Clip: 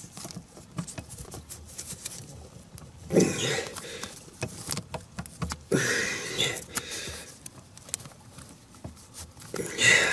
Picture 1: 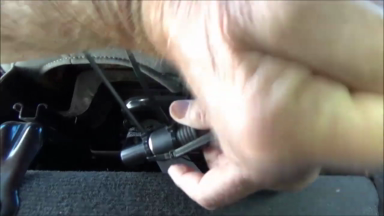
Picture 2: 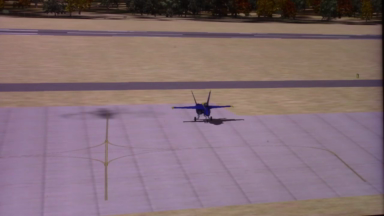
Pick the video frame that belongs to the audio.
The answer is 1